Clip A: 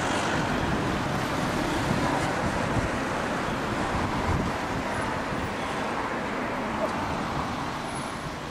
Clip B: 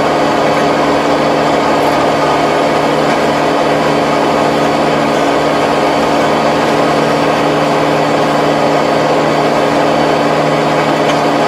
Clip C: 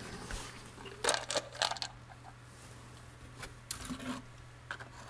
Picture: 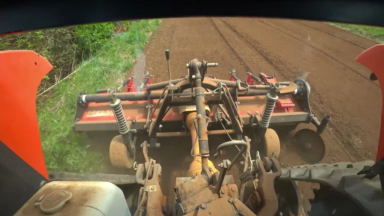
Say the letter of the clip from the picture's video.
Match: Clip B